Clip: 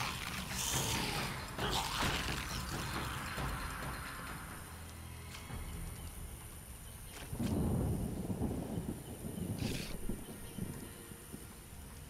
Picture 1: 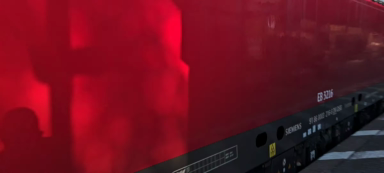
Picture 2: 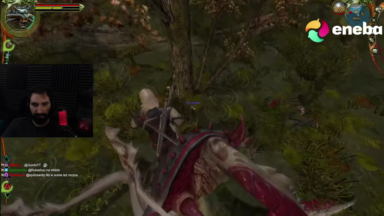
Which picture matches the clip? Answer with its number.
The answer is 2